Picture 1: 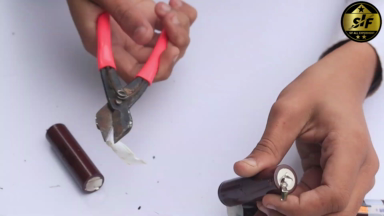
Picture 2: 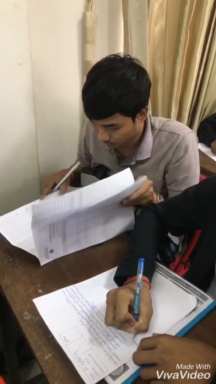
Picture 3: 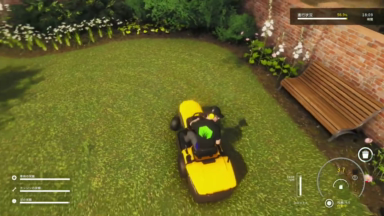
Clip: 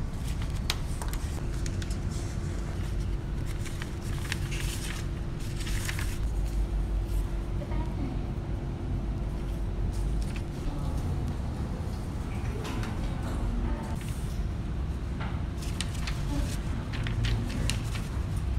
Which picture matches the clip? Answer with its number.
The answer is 2